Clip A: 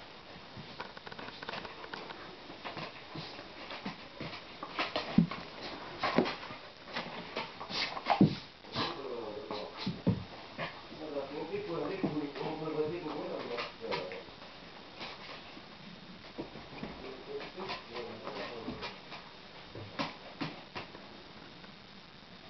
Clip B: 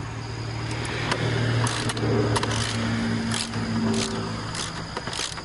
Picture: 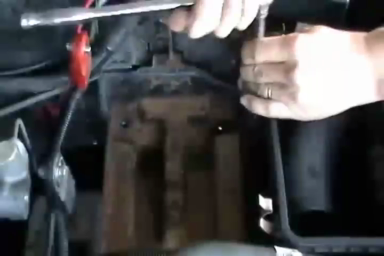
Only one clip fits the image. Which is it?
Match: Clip B